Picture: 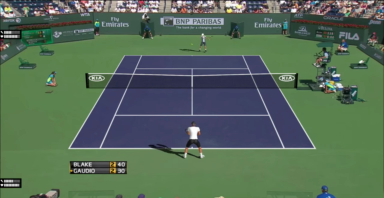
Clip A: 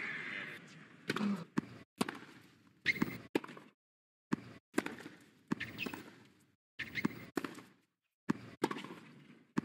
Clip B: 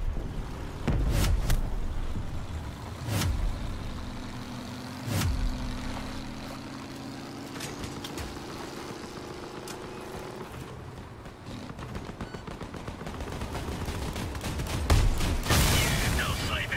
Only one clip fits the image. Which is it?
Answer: A